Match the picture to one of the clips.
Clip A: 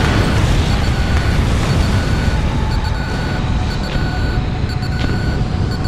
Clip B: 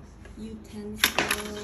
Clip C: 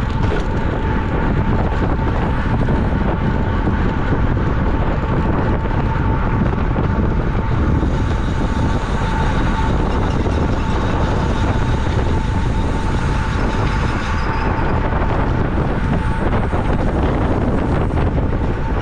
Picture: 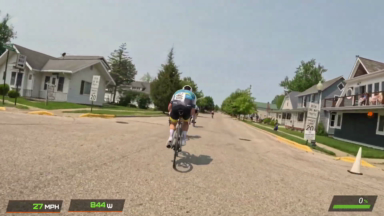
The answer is C